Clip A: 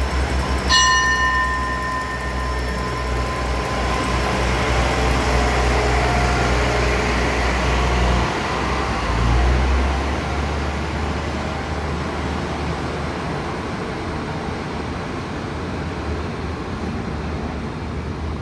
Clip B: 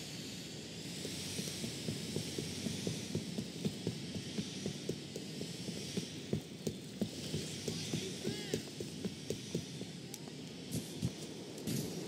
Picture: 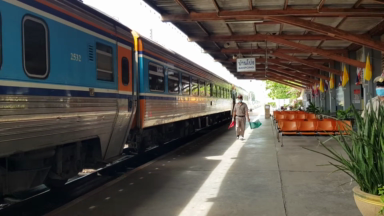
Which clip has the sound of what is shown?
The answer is A